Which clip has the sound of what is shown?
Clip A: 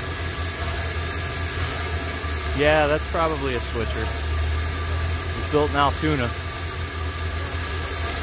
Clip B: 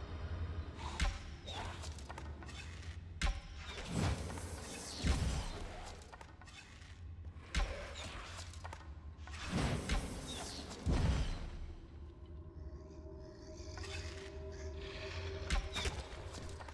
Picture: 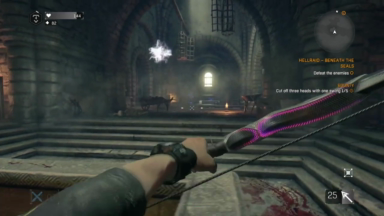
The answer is B